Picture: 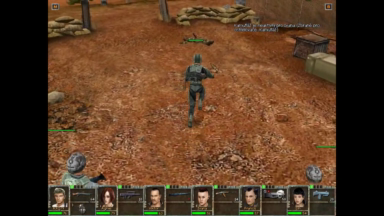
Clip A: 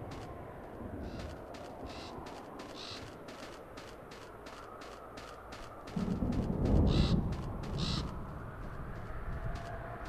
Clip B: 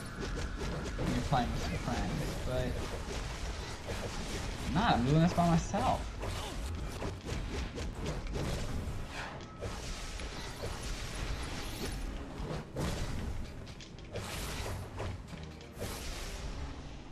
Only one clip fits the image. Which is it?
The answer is A